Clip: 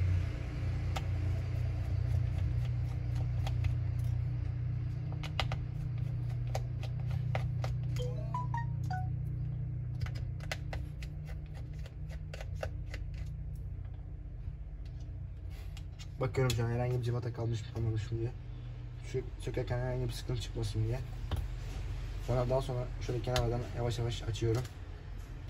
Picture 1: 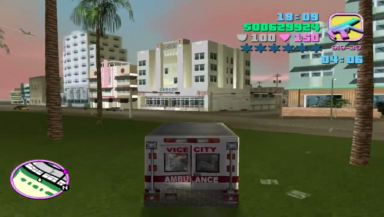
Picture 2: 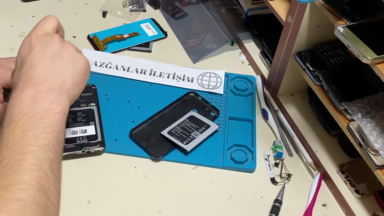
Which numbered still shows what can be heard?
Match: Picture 2